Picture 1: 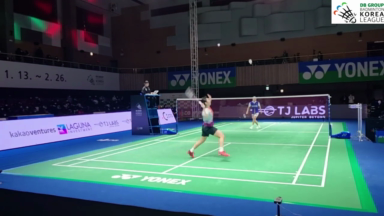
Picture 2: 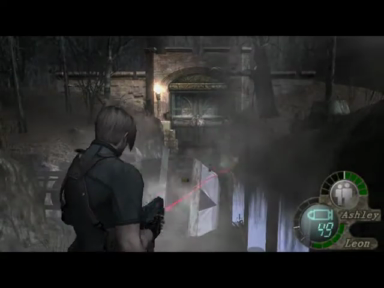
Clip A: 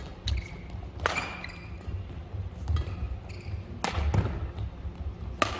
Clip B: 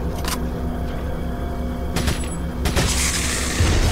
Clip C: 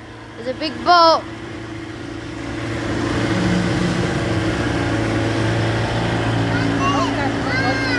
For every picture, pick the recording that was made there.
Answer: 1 A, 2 B